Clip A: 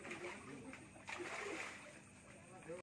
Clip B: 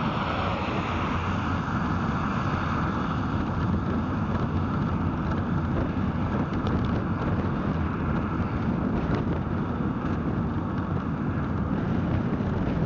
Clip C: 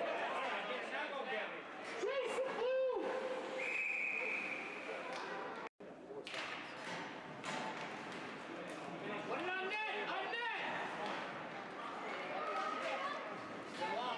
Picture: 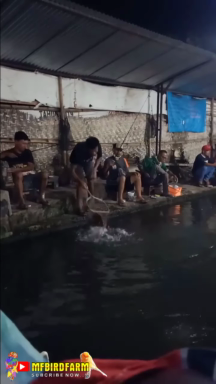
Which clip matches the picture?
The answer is A